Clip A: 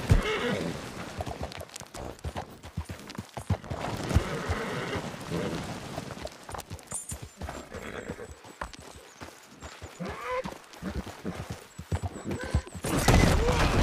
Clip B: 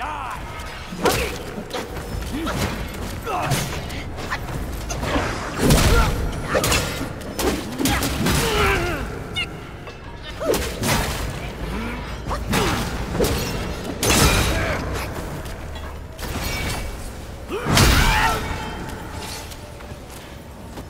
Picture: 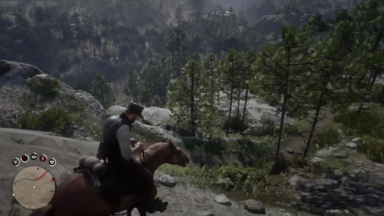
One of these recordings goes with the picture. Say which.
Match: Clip A